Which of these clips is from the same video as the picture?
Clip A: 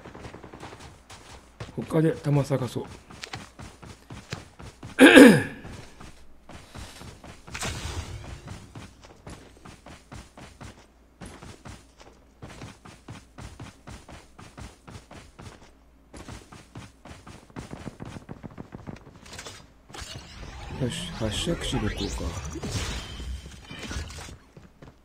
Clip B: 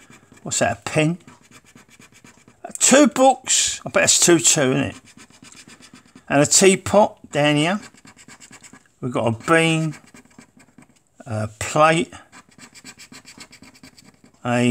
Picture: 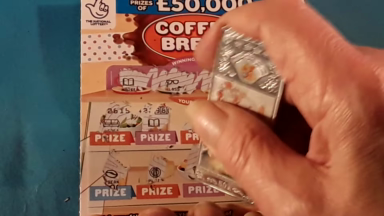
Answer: B